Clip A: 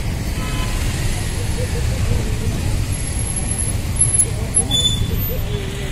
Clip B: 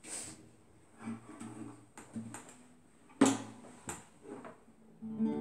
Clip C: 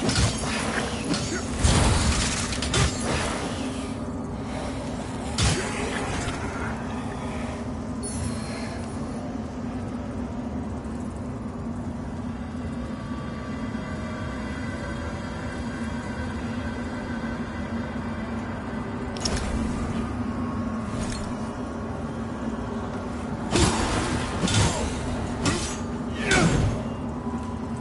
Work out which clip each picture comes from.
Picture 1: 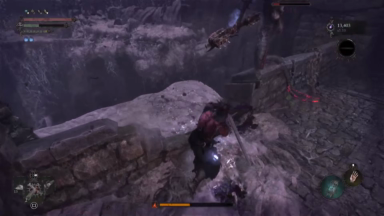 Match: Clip C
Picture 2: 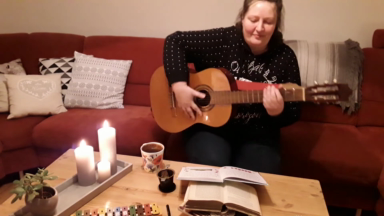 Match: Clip B